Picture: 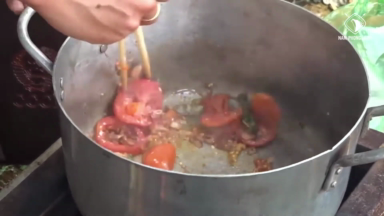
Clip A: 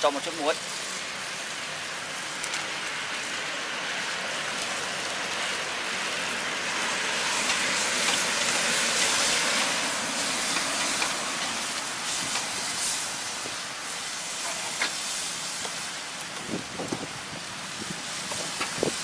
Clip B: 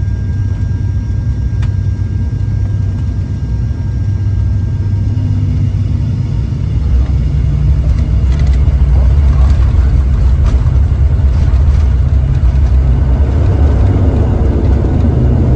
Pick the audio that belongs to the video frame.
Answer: A